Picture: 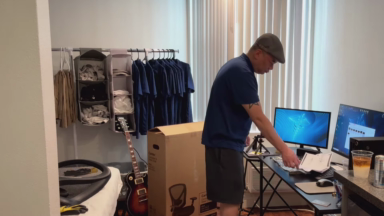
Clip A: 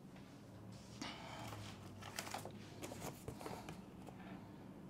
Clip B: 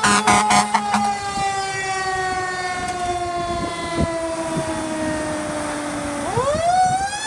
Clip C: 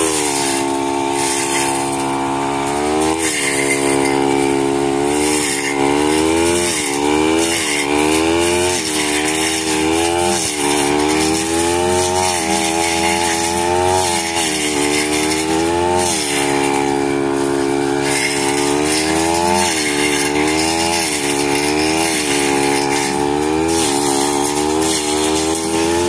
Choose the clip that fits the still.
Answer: A